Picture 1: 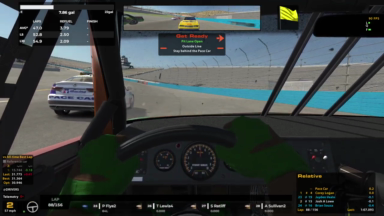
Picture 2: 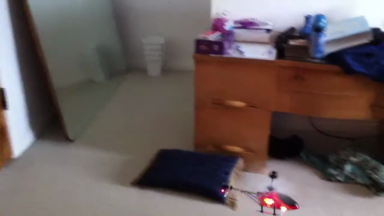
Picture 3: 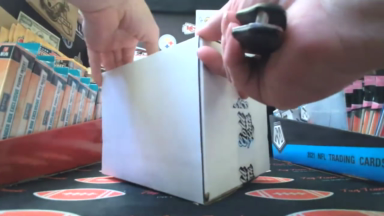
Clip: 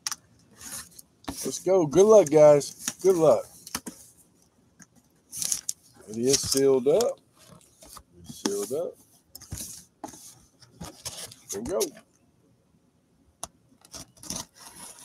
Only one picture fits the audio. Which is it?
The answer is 3